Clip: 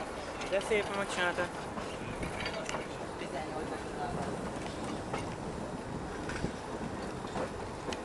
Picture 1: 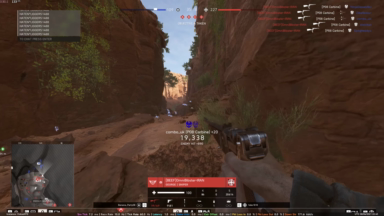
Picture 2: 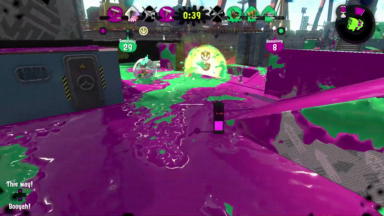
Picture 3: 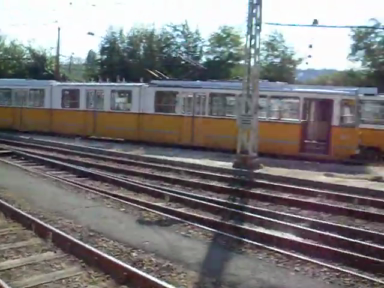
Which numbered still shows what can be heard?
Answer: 3